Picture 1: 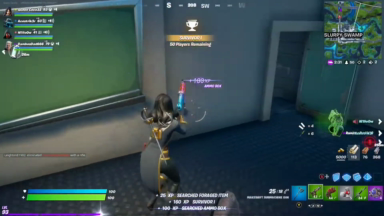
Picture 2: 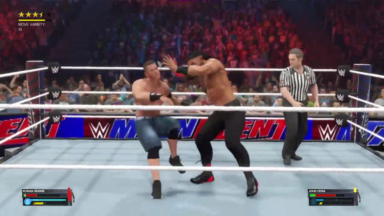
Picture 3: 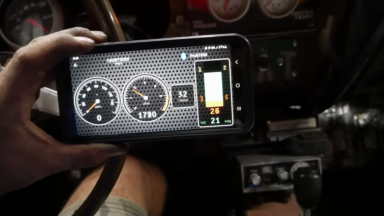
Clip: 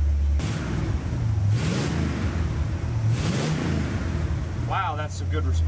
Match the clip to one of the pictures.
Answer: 3